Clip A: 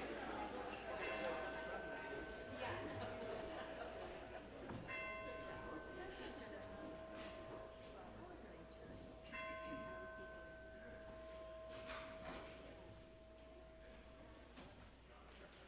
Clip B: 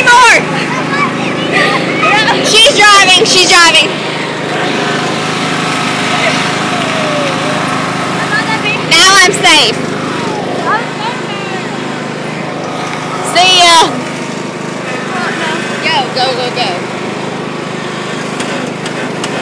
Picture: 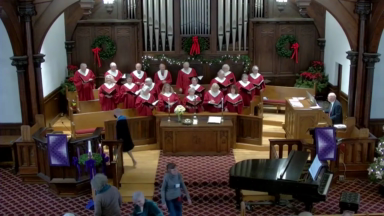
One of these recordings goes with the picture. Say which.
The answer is A